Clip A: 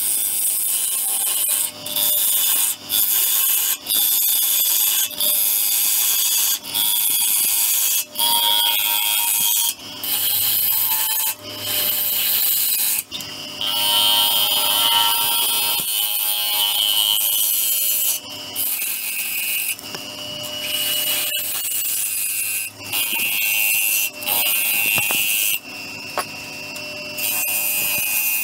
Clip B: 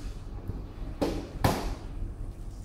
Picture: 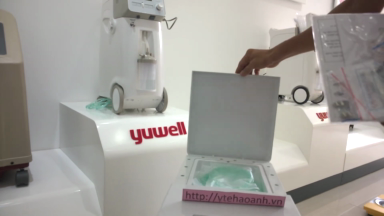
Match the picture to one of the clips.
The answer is B